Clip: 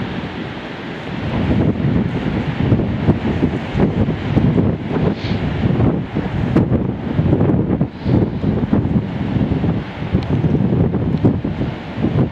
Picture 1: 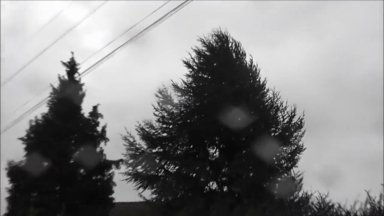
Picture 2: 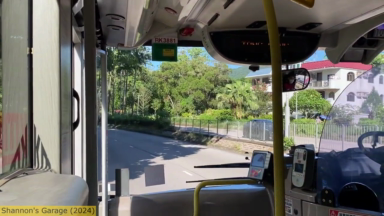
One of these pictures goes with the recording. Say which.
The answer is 1